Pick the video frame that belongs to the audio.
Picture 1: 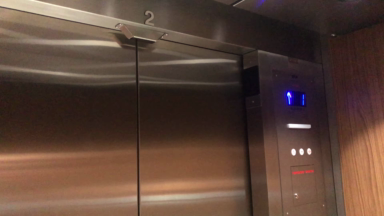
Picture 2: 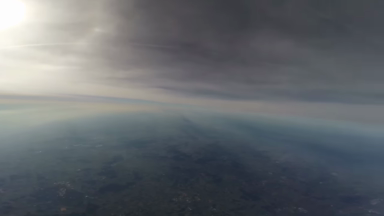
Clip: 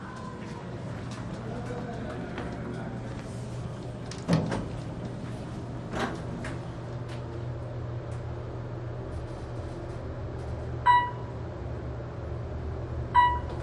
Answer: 1